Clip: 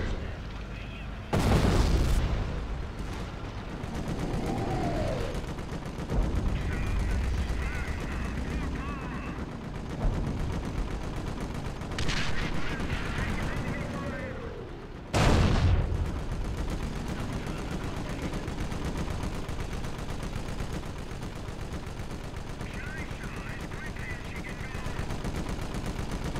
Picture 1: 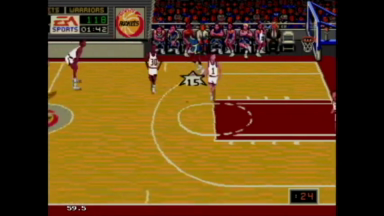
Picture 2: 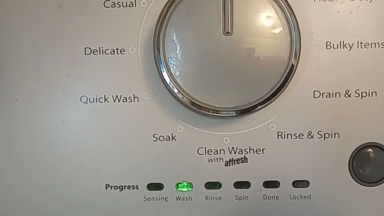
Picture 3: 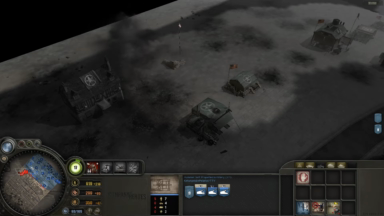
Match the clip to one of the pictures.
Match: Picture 3